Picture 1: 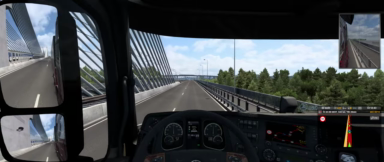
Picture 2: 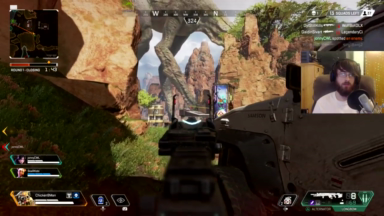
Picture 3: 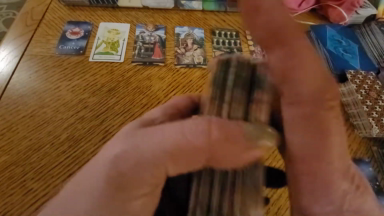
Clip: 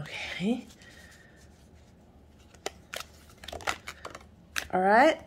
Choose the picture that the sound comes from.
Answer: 3